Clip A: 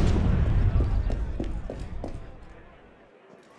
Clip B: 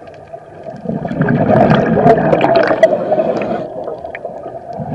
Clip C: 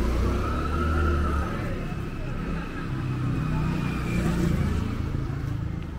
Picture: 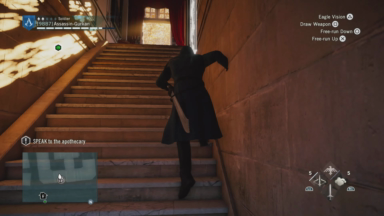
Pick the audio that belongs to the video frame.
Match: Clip A